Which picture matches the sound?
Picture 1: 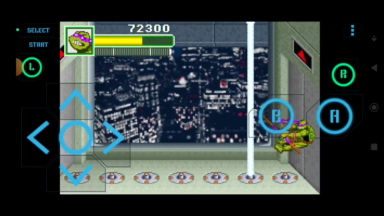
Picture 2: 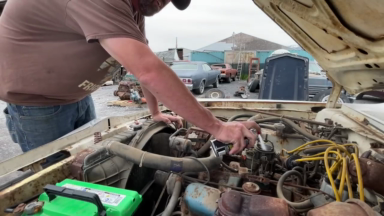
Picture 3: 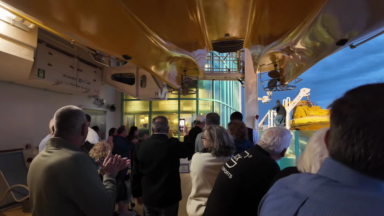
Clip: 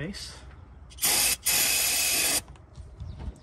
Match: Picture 2